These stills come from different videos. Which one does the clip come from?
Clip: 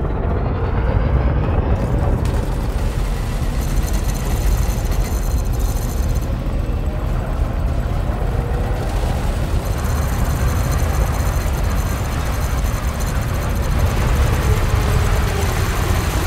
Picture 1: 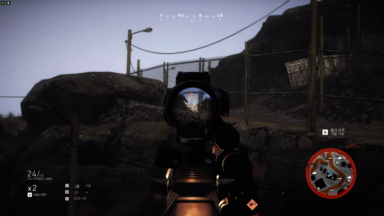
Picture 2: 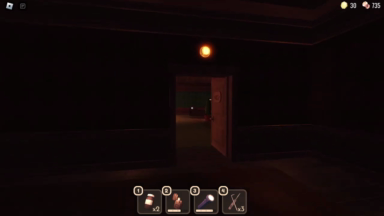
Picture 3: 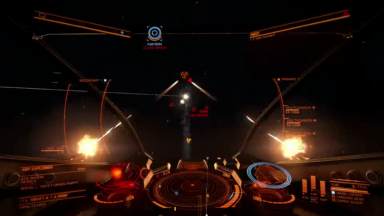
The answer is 3